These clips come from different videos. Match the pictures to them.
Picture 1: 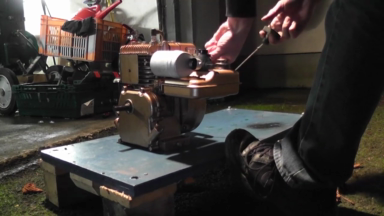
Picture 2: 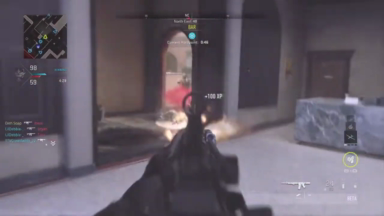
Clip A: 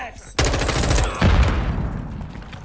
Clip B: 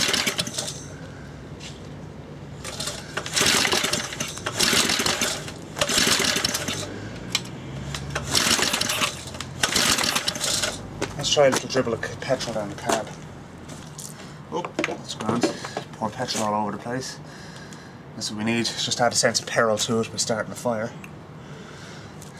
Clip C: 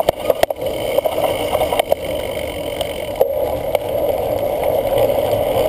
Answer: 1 B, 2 A